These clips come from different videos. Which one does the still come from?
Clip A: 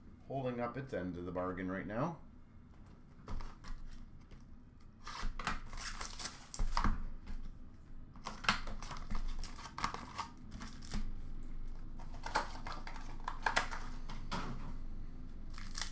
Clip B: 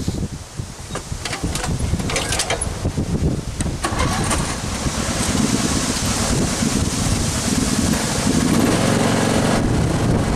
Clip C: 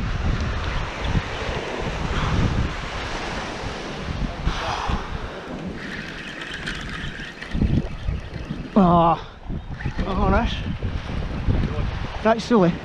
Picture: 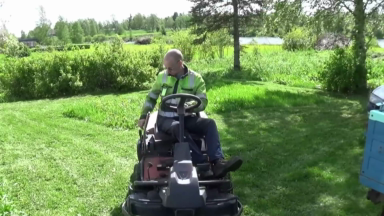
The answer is B